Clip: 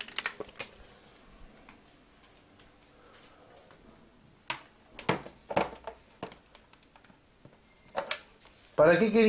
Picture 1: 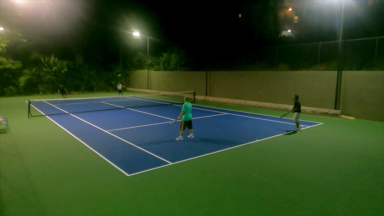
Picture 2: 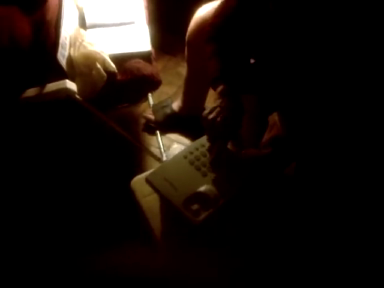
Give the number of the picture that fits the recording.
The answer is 2